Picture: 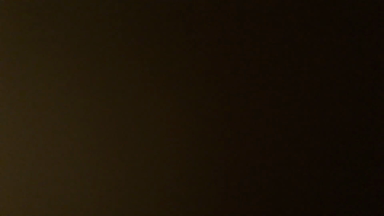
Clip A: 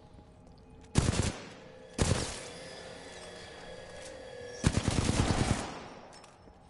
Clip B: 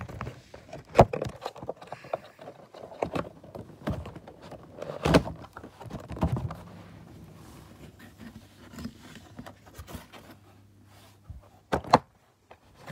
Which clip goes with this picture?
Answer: B